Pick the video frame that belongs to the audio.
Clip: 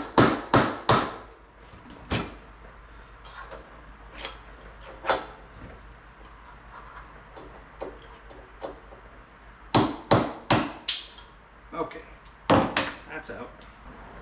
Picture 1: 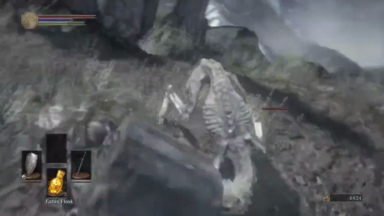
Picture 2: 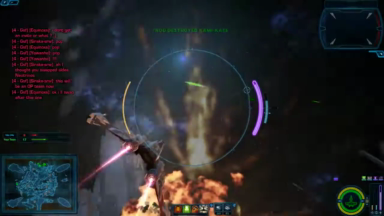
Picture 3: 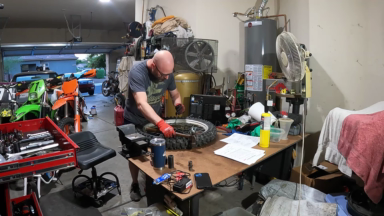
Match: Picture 3